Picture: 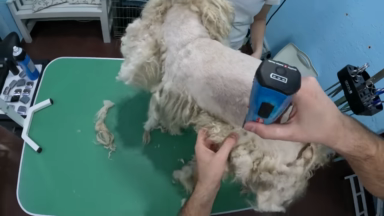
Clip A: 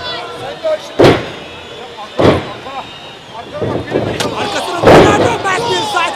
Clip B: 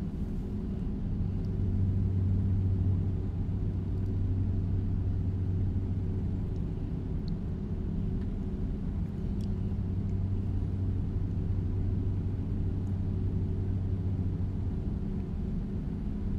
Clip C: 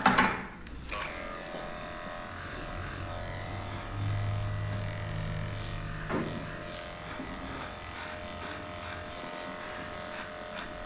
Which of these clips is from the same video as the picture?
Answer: C